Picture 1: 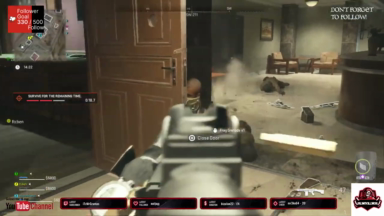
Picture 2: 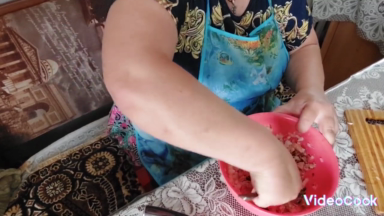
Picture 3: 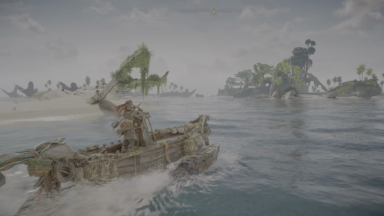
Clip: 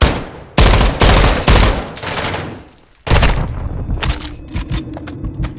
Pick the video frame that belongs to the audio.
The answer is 1